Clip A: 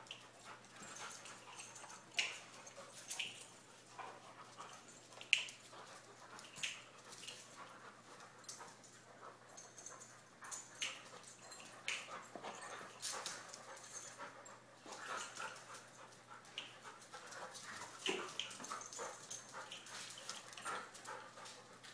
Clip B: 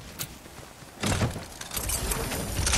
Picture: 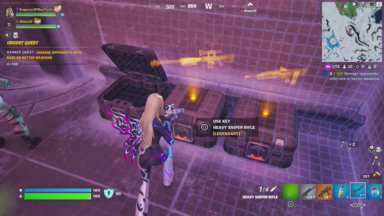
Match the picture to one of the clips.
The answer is B